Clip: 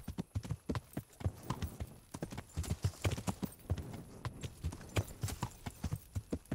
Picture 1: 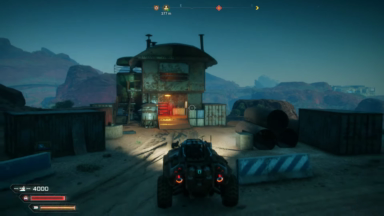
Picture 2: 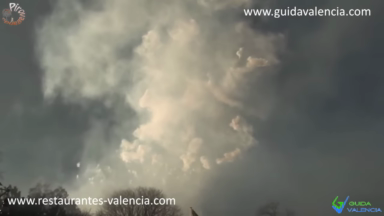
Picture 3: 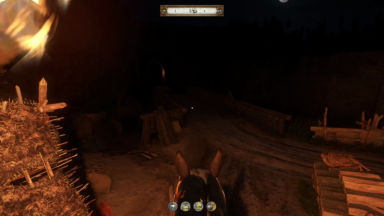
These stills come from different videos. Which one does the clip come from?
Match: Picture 3